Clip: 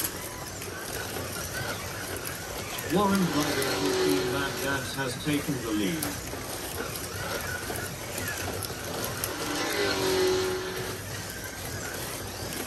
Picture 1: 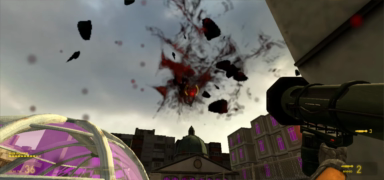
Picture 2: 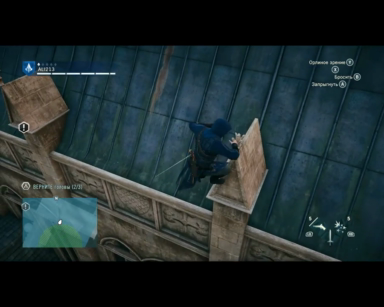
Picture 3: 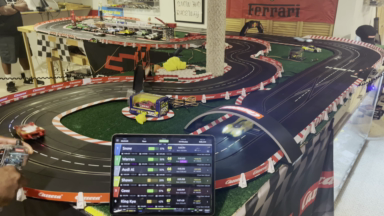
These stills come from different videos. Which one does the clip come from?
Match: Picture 3